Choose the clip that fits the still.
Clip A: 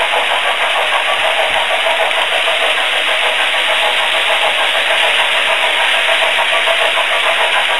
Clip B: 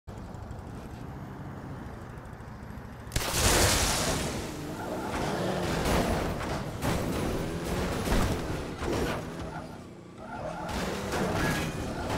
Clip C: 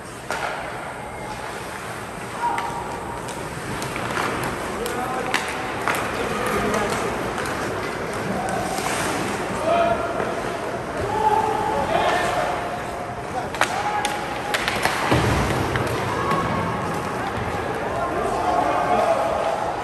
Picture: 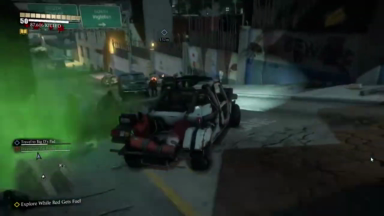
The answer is B